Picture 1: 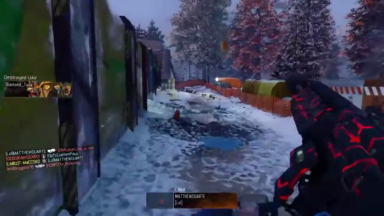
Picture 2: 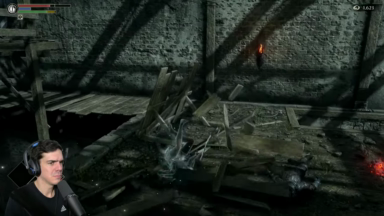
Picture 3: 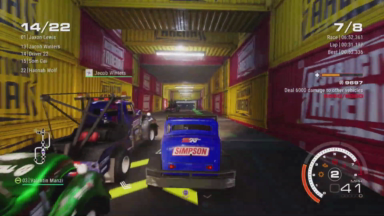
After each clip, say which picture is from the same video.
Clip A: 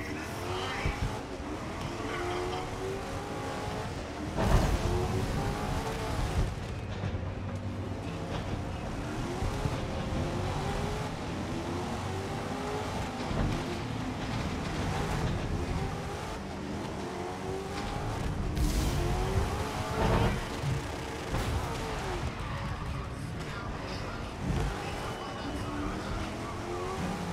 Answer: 3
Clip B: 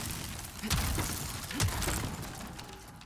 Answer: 2